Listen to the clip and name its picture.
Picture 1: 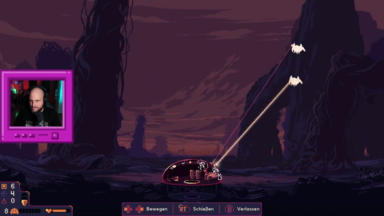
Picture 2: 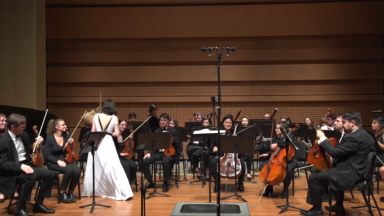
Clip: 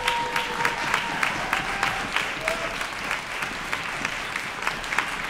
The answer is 2